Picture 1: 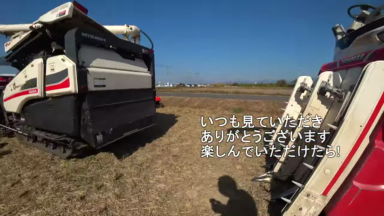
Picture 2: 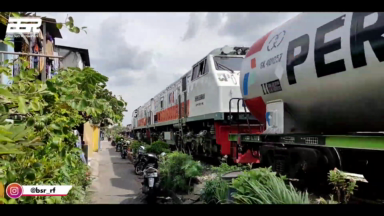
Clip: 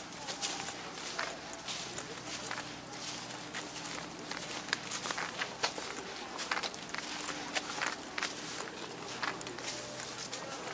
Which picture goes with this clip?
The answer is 1